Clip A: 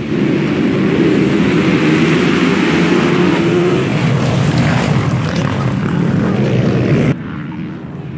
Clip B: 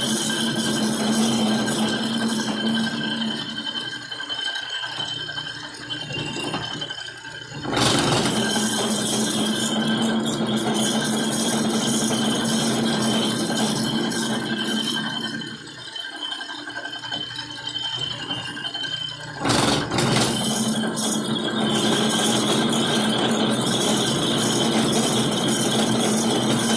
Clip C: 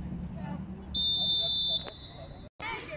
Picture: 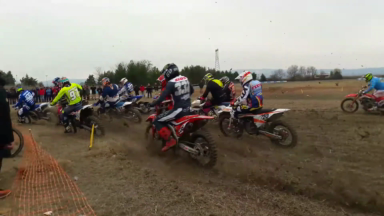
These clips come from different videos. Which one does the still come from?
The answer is A